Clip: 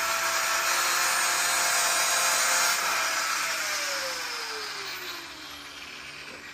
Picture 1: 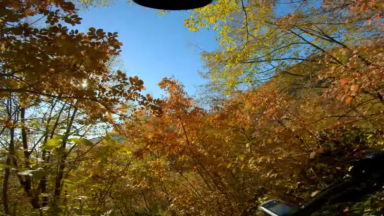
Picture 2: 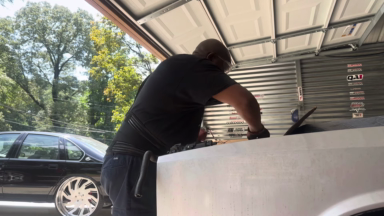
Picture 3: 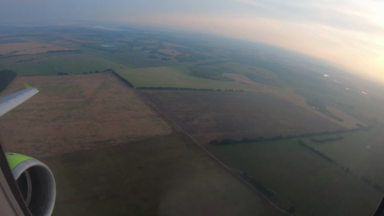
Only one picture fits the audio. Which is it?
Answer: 2